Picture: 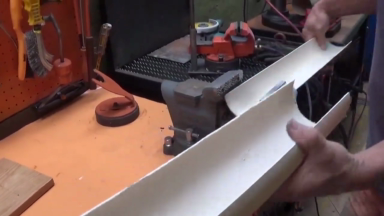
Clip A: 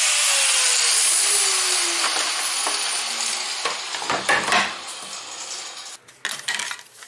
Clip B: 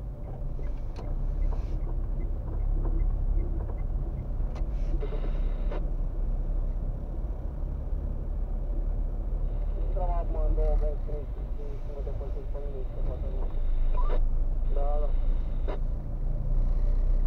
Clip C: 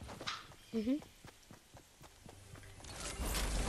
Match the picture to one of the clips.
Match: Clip A